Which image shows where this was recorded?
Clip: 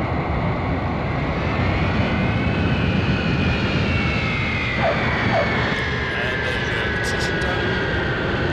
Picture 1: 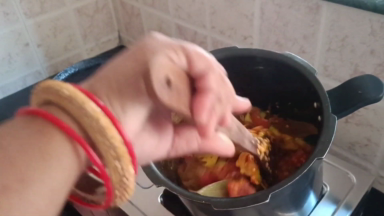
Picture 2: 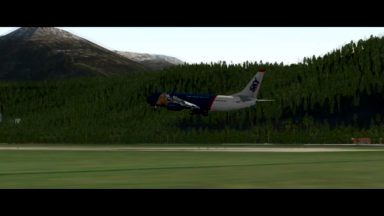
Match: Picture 2